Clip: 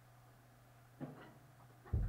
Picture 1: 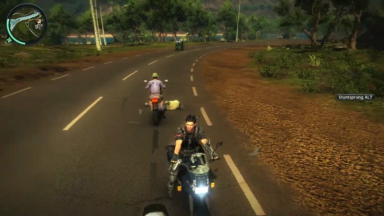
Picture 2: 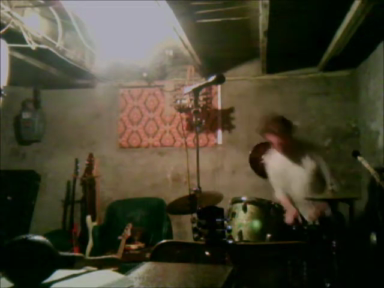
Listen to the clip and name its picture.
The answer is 2